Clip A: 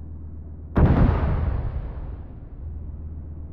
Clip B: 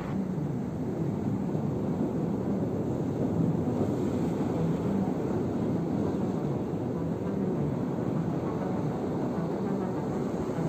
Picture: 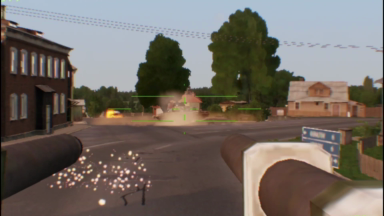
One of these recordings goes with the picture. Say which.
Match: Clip A